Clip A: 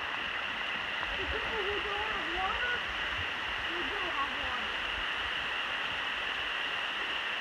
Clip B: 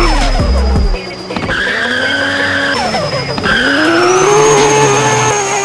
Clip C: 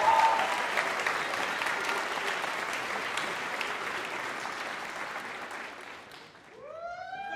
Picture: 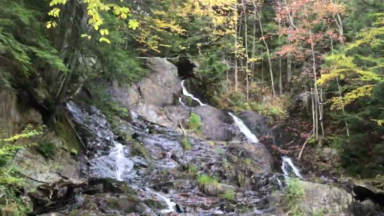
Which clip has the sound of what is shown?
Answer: A